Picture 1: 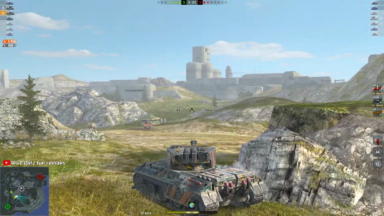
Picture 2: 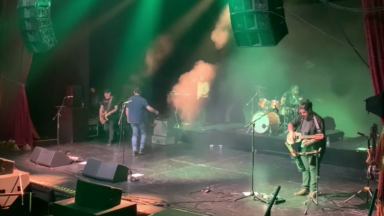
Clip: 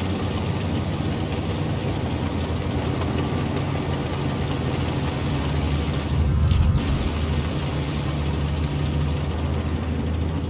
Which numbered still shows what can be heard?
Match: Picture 1